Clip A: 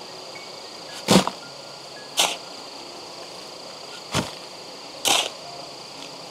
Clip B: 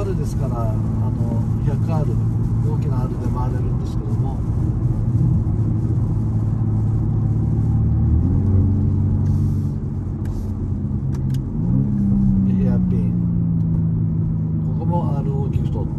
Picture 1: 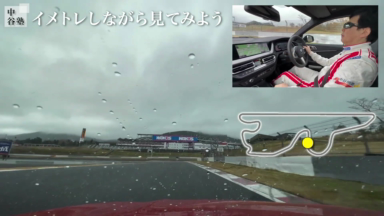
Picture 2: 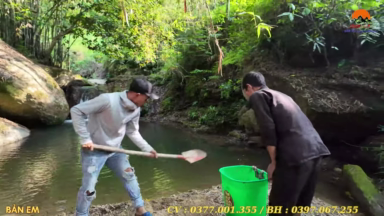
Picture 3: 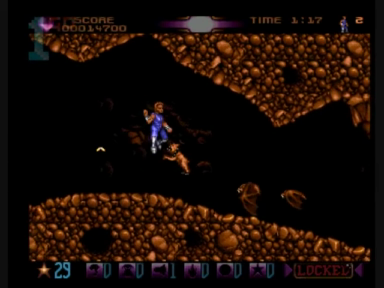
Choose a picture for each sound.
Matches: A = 2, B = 1